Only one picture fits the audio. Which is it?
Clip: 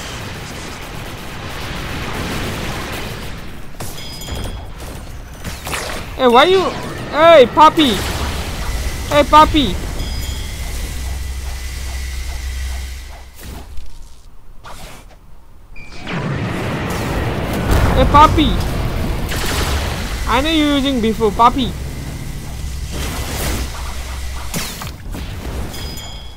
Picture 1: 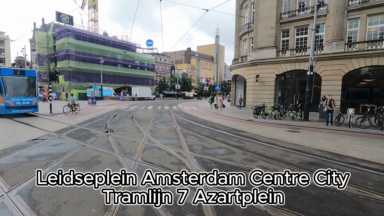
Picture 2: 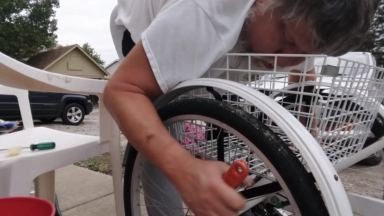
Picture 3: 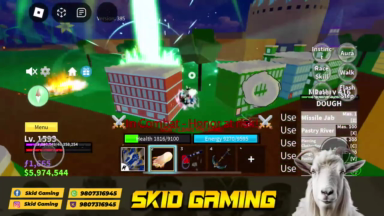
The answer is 3